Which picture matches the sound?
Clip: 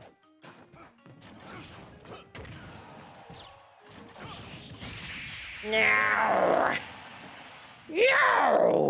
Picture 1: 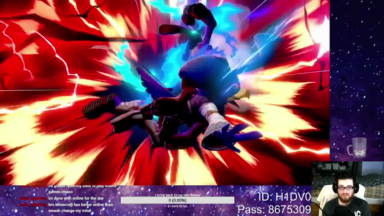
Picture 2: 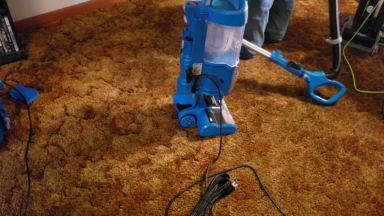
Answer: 1